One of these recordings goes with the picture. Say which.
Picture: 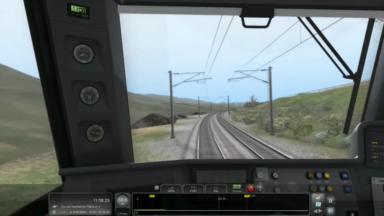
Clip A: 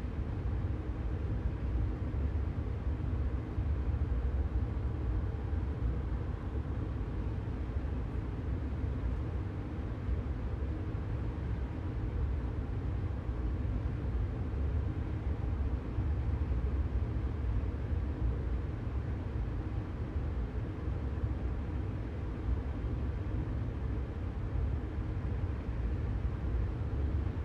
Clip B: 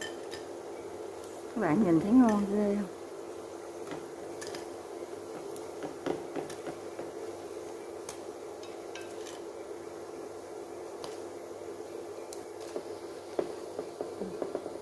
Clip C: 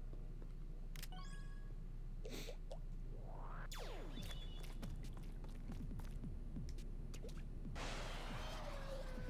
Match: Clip A